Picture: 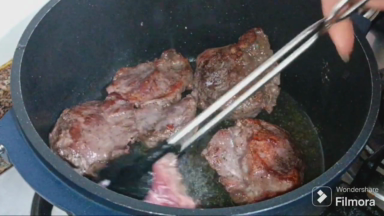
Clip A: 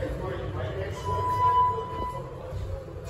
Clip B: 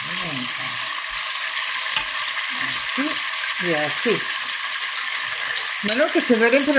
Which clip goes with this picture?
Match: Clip B